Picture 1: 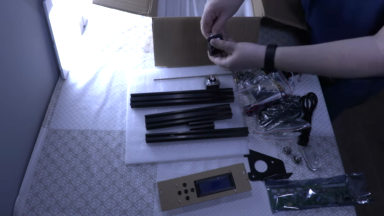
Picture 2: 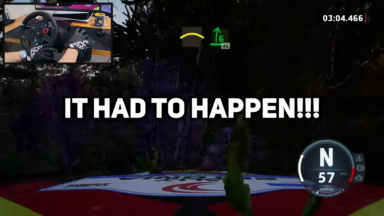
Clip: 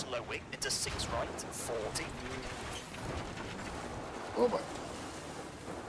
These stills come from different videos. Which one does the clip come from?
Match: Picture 2